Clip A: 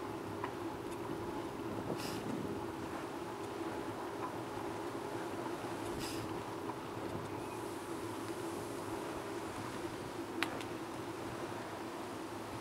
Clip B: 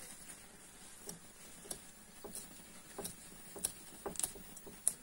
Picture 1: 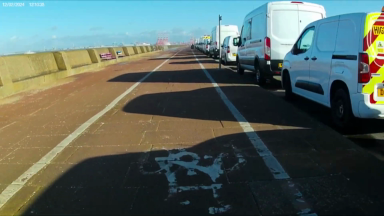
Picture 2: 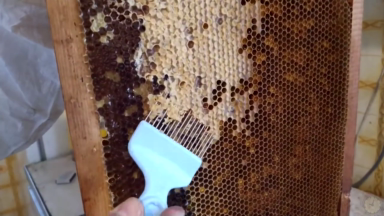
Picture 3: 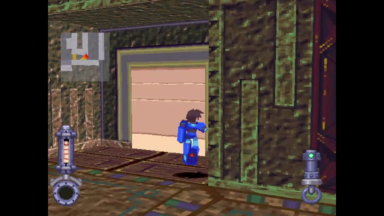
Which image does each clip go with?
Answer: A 1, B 2